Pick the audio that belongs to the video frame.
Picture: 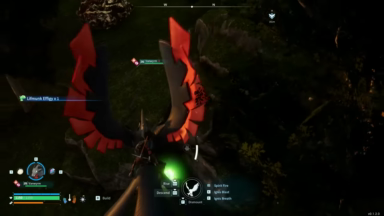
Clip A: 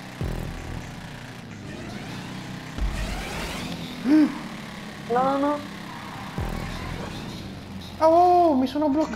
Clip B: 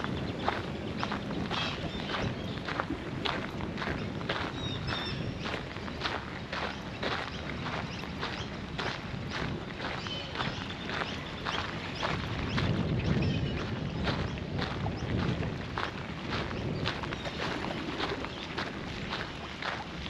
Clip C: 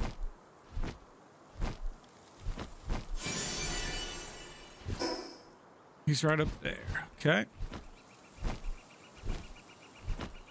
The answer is C